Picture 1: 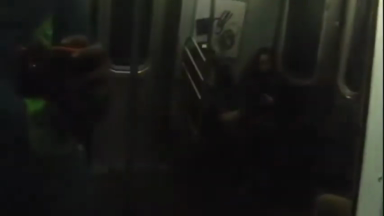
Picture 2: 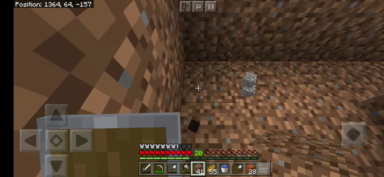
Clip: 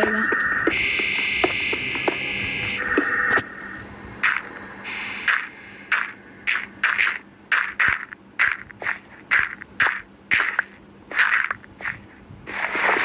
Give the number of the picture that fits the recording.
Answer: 2